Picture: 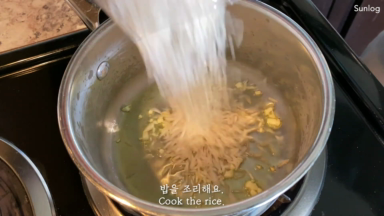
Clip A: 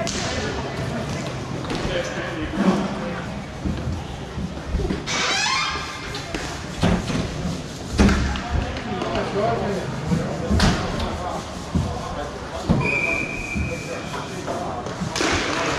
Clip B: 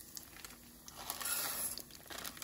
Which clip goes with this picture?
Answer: B